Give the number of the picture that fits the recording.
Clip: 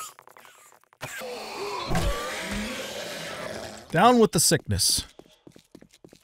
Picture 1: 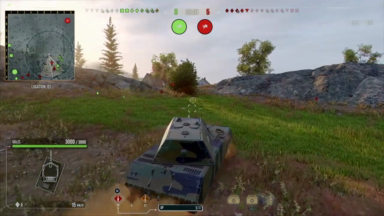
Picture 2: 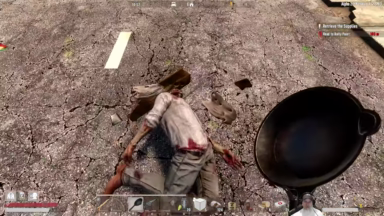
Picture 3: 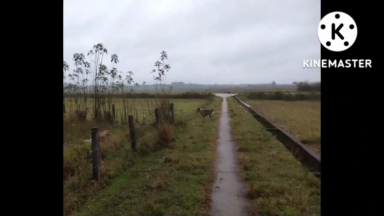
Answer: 2